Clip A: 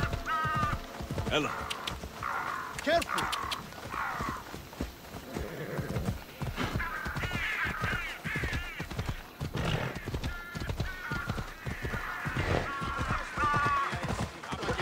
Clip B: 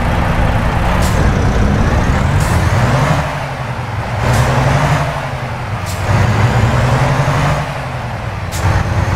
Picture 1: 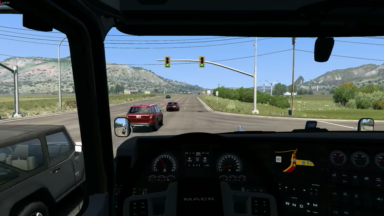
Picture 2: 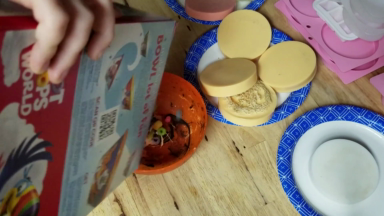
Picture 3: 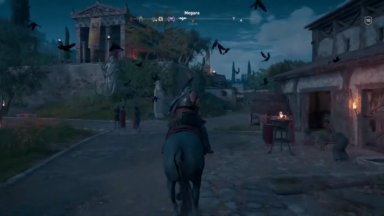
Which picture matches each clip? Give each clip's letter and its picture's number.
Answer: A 3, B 1